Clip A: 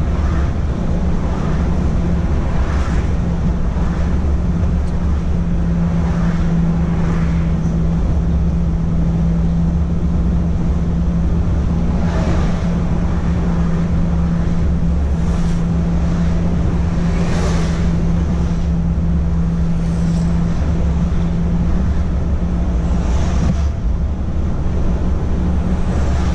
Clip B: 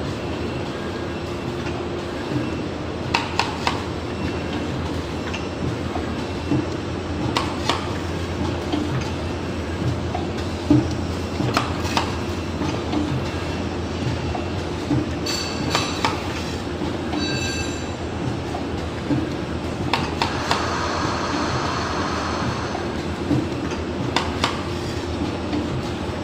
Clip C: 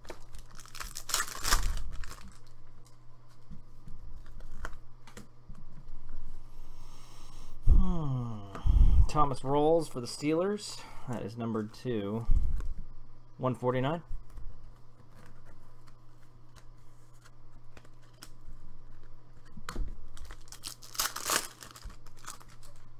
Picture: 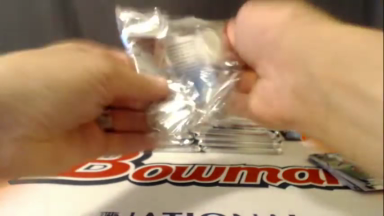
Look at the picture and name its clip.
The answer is C